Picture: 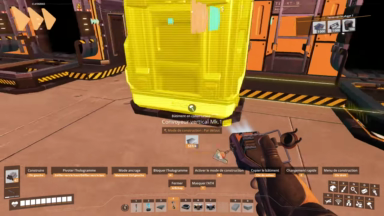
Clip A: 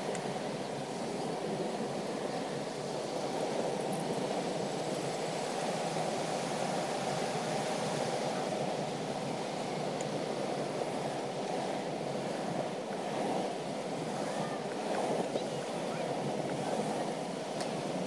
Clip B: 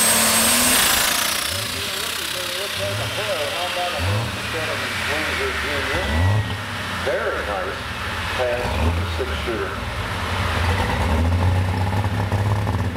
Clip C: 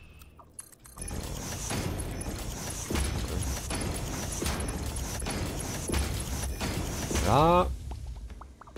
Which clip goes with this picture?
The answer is C